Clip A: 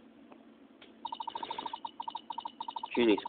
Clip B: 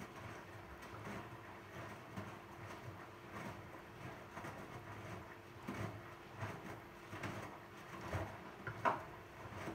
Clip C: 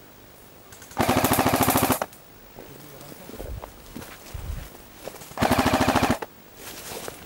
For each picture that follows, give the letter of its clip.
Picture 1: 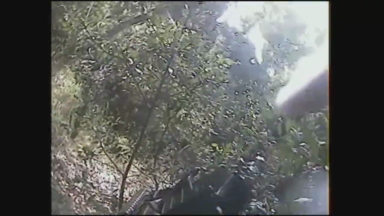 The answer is C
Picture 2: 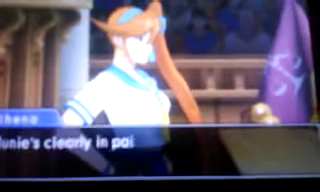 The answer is A